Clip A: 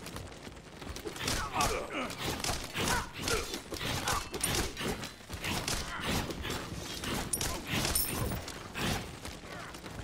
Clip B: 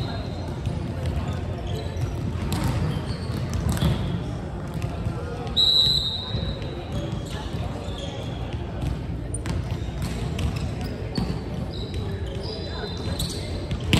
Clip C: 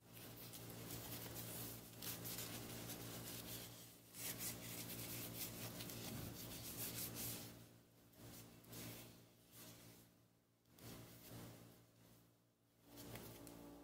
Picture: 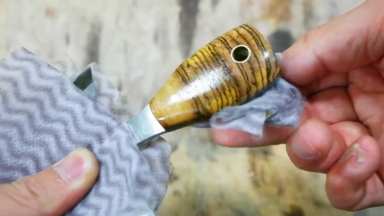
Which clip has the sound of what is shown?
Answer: C